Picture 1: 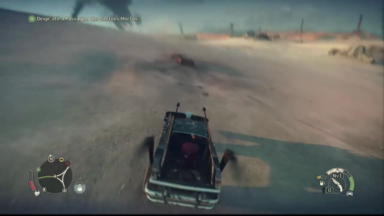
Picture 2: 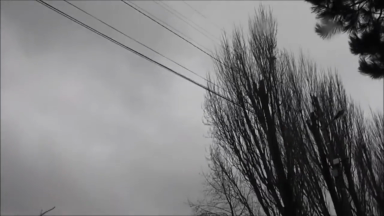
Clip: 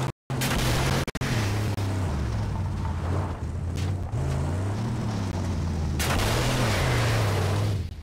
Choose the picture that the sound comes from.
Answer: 1